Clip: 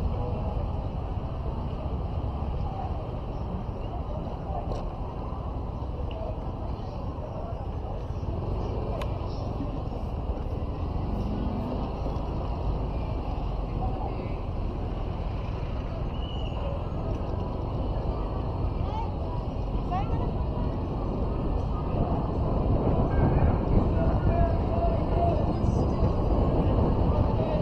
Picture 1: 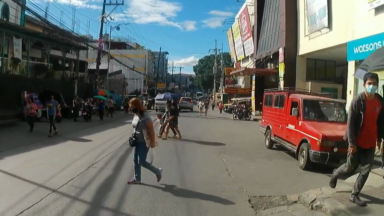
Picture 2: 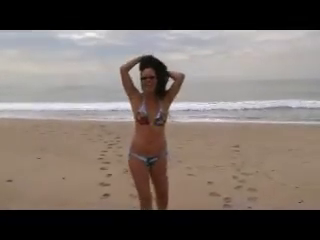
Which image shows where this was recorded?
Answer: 1